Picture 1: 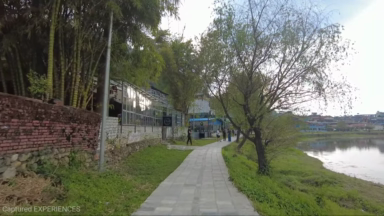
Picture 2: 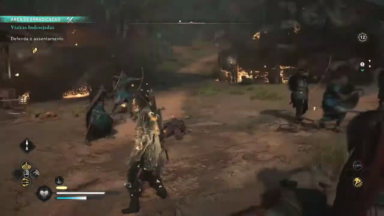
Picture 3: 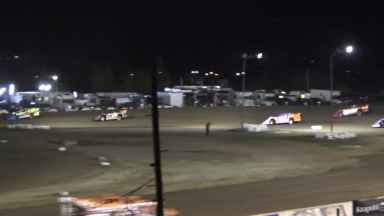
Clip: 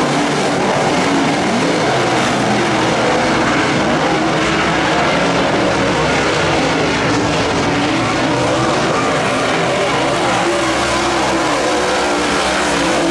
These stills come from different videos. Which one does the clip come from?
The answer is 3